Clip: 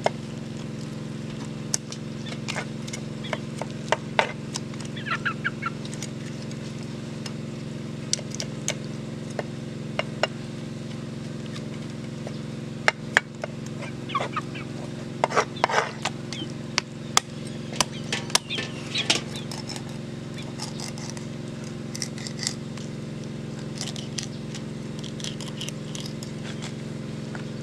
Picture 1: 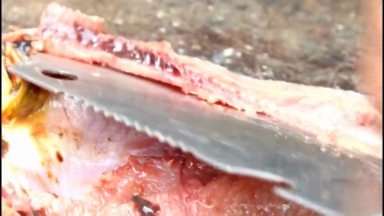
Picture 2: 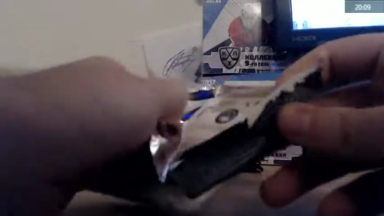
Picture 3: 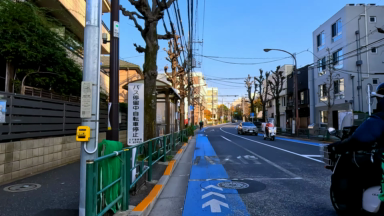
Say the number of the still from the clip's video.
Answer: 1